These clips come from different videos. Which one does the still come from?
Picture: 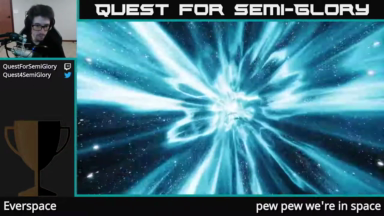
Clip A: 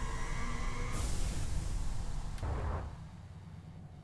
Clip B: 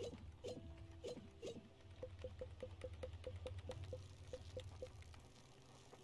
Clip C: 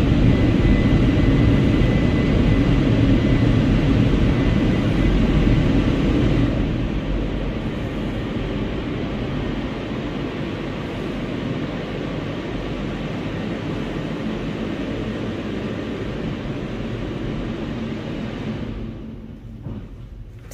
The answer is A